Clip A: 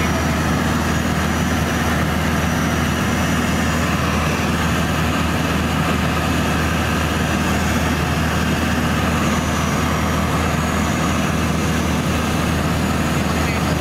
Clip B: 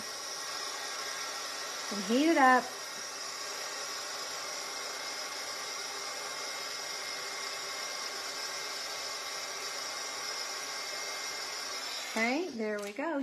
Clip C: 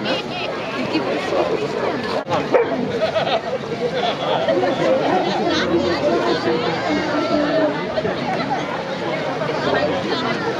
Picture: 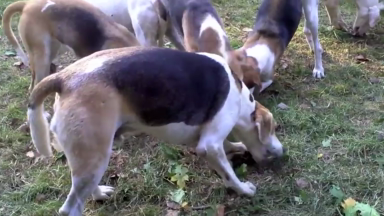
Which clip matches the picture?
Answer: C